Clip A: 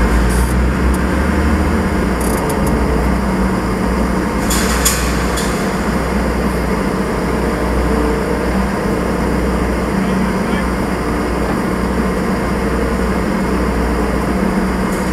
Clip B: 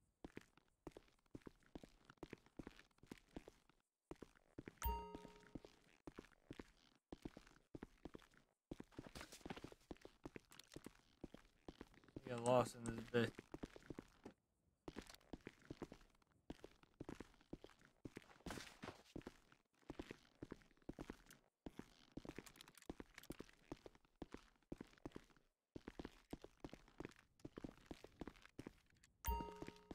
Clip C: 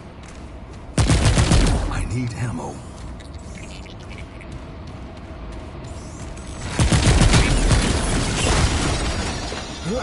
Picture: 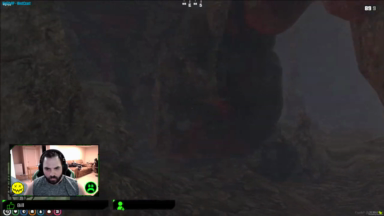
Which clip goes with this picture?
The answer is B